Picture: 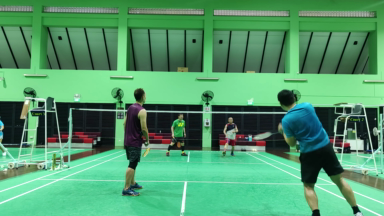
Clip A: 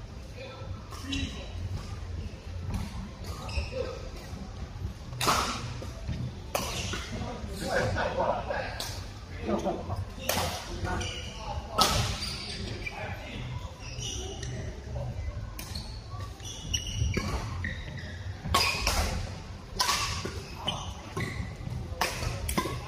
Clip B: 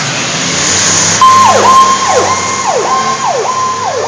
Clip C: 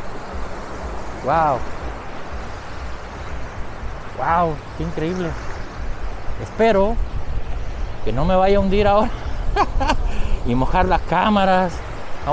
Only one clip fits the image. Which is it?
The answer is A